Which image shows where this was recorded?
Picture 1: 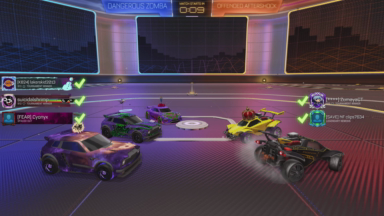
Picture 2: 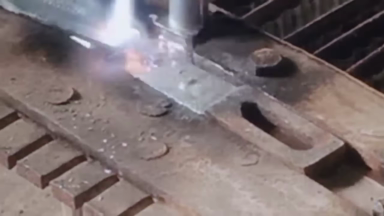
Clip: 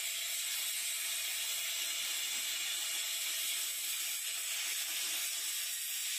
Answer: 2